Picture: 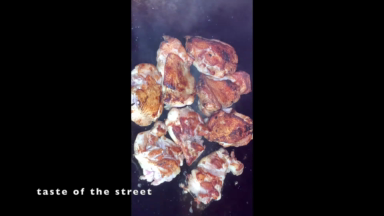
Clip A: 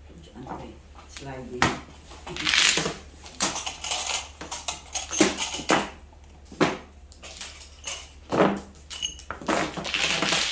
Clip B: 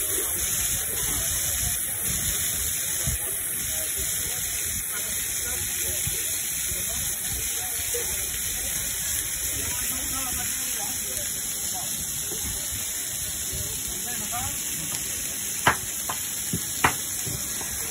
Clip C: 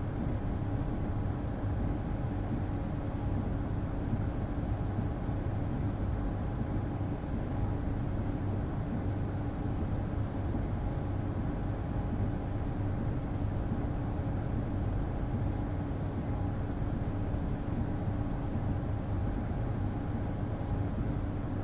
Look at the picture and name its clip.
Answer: B